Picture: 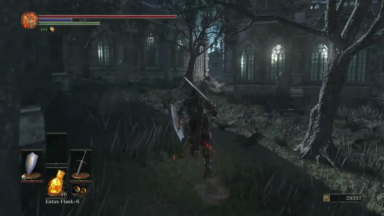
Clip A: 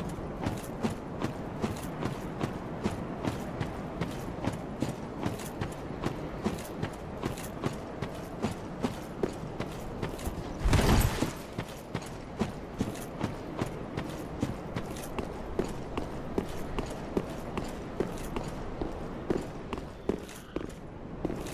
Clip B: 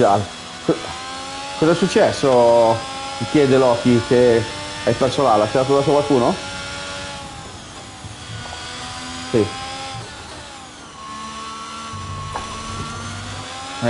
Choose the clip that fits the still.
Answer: A